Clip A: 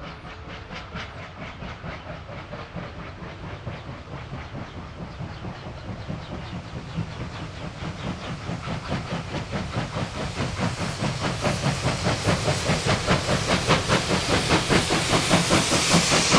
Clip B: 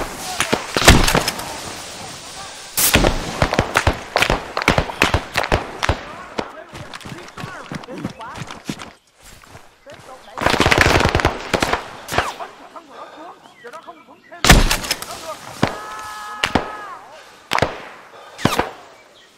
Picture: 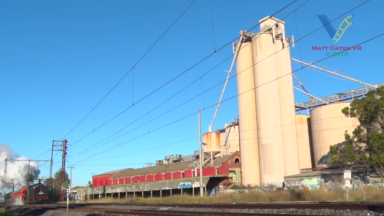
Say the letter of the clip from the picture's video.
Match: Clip A